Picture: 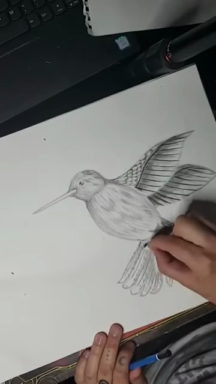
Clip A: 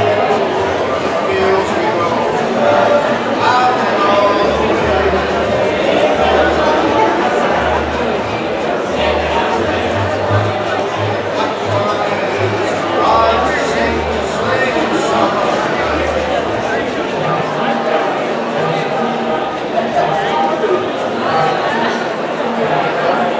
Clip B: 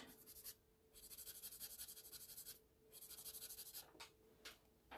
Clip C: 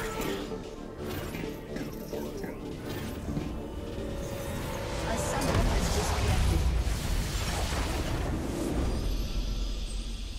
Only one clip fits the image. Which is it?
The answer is B